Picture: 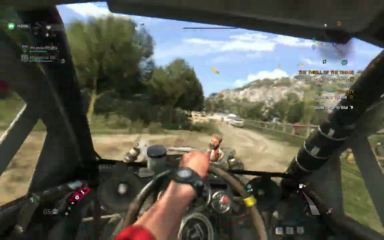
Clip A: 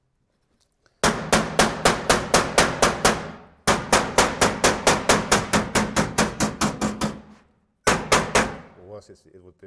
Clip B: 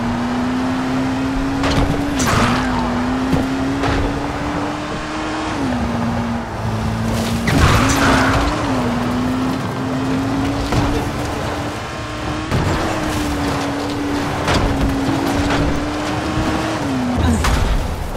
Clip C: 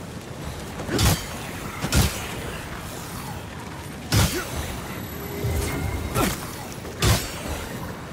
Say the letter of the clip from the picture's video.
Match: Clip B